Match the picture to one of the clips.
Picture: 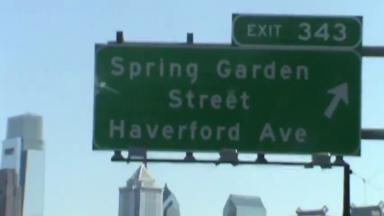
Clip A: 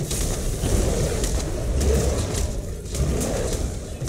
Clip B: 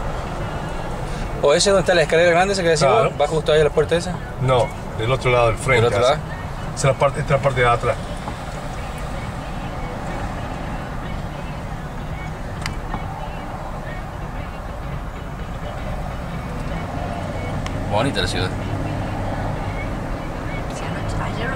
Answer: B